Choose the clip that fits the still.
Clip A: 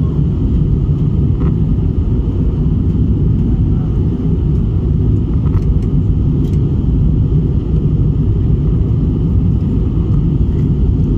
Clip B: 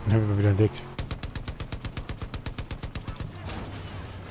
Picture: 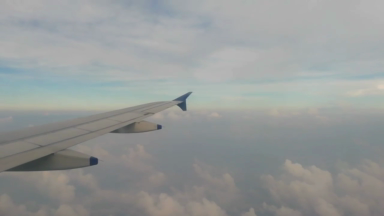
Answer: A